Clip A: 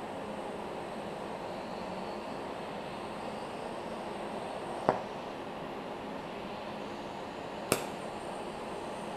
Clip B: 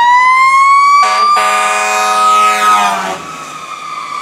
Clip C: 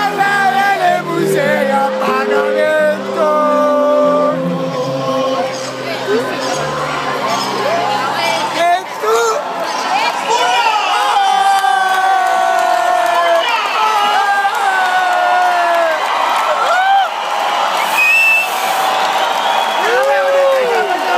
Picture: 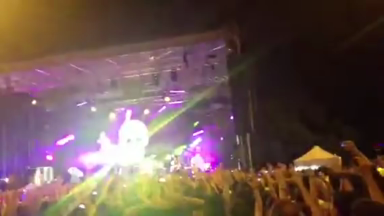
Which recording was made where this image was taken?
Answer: C